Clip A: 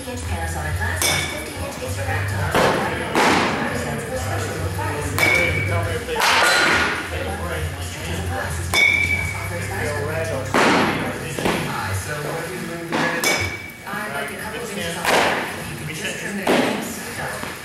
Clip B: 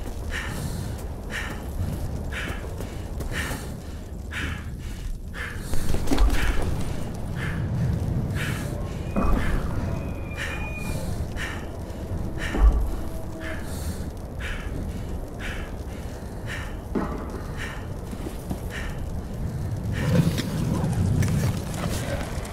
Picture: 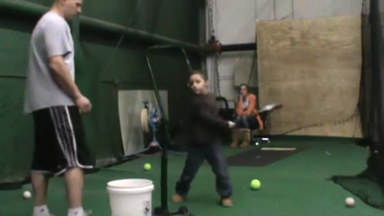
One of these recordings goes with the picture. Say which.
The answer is A